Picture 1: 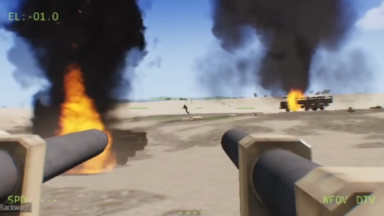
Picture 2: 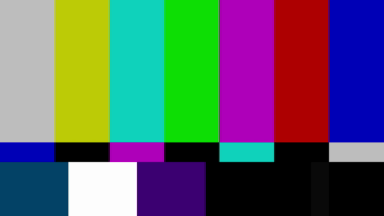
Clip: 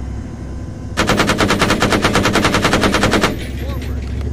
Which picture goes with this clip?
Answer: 1